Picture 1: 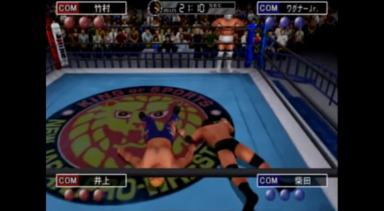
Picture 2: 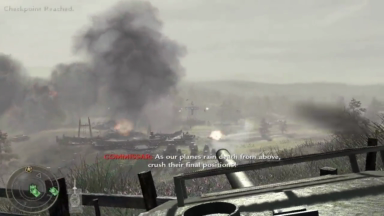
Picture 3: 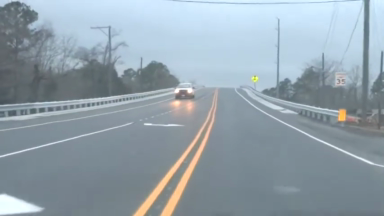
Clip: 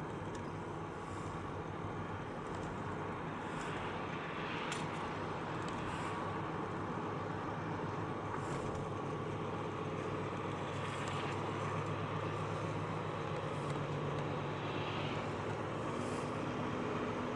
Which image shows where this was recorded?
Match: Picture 3